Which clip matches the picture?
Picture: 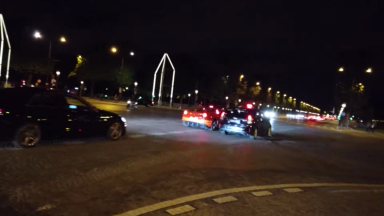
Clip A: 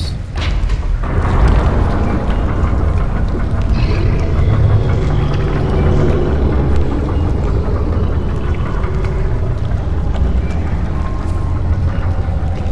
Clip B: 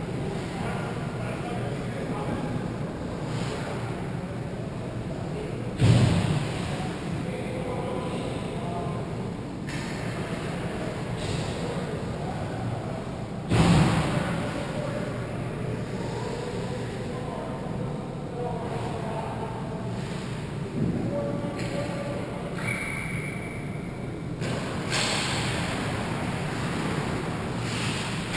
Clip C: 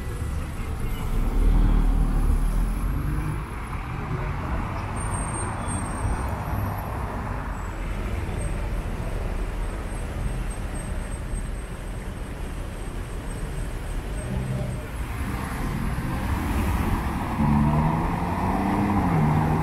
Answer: C